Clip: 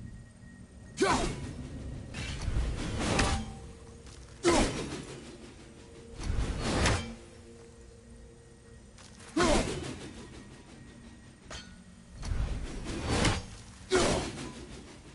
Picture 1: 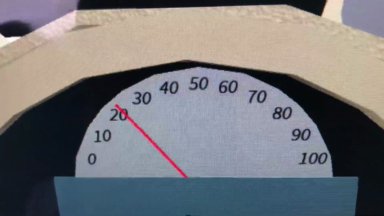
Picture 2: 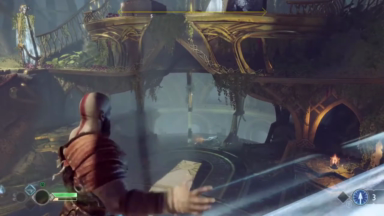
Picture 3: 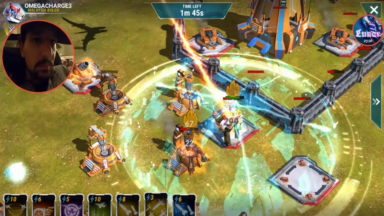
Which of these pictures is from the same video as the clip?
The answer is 2